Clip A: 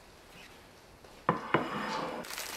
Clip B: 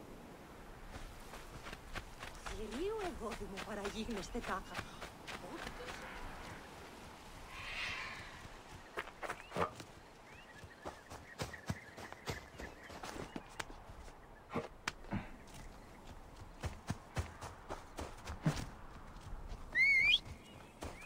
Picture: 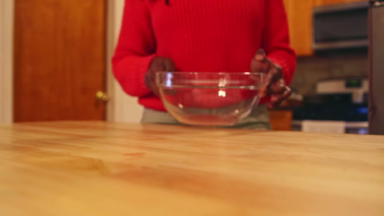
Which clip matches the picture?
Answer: A